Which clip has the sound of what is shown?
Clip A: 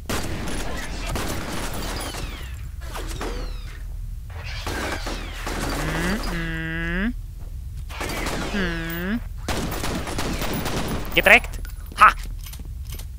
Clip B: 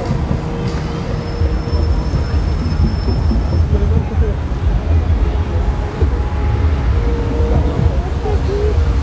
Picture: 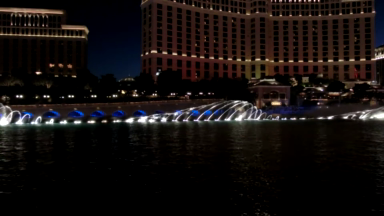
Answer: B